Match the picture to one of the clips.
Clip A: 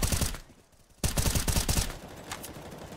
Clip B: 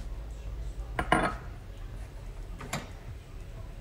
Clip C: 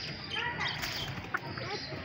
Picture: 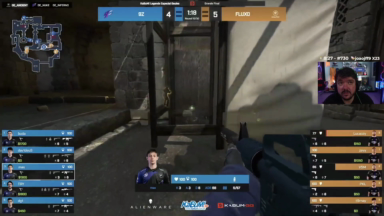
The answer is A